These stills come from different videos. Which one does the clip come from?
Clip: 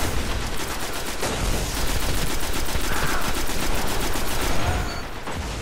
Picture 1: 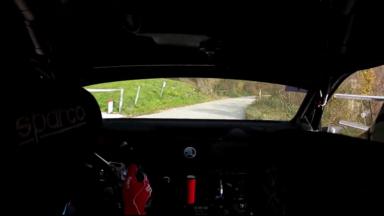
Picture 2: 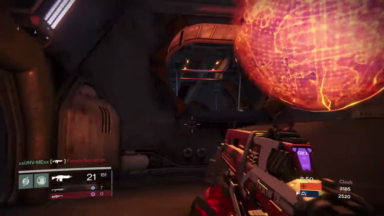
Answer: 2